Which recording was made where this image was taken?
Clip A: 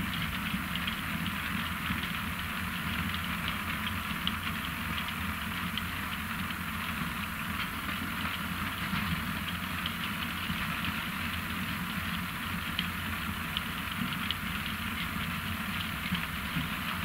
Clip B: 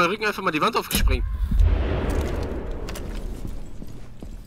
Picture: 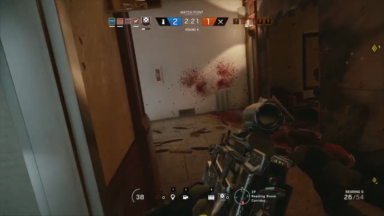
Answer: B